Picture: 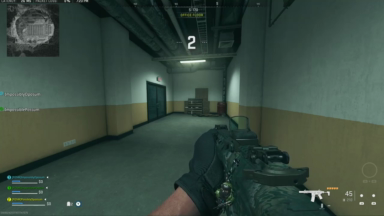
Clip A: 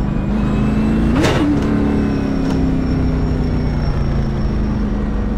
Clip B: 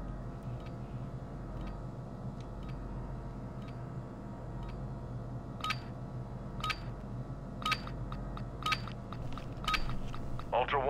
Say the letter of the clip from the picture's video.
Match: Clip B